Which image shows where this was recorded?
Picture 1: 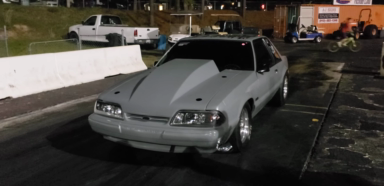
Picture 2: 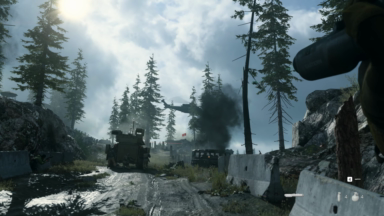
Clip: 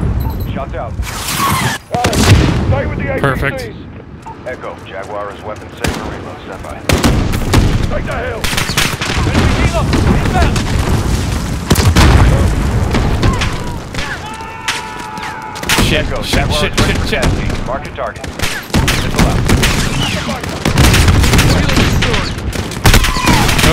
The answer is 2